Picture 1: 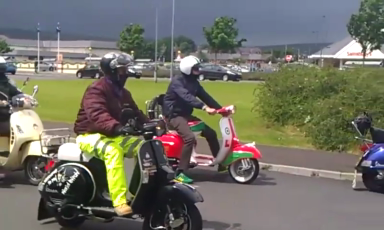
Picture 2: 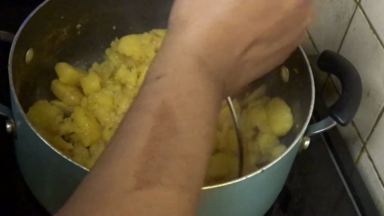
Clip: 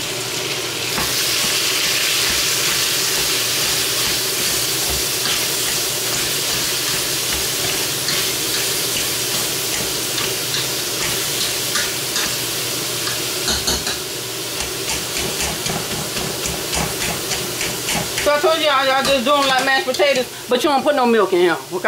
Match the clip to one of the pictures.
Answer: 2